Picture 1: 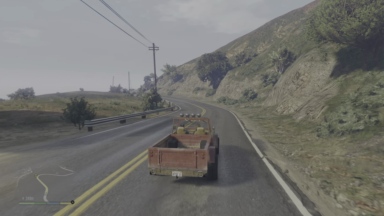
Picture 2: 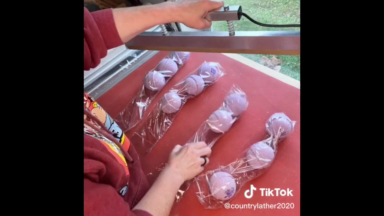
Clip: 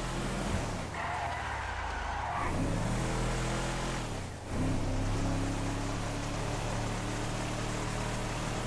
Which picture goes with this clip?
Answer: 1